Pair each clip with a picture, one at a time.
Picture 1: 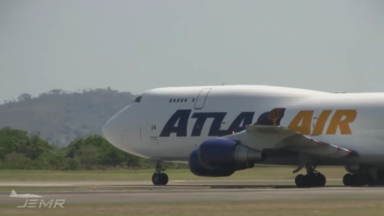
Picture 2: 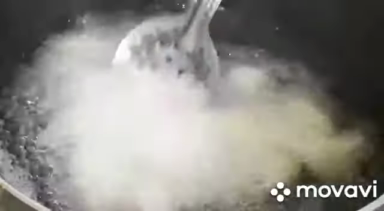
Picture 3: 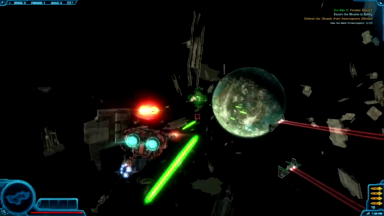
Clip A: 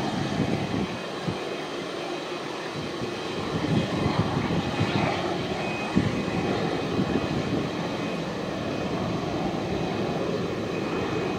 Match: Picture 1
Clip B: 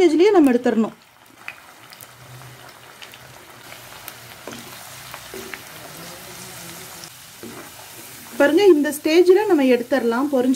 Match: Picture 2